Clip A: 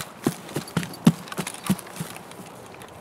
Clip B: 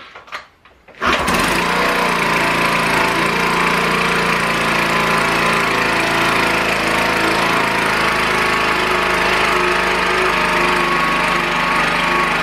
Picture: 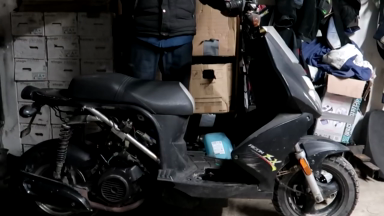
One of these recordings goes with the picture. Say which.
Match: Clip B